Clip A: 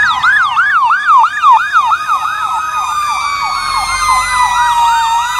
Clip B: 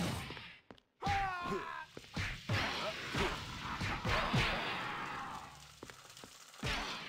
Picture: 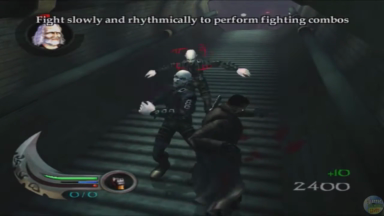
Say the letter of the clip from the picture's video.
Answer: B